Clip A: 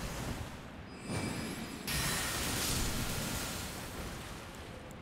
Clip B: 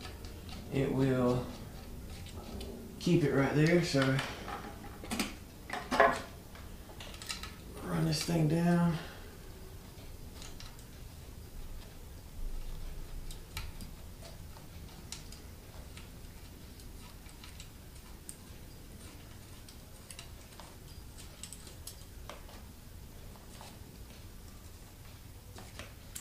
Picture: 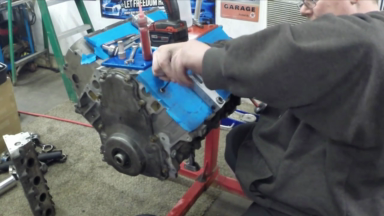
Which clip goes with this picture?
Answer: B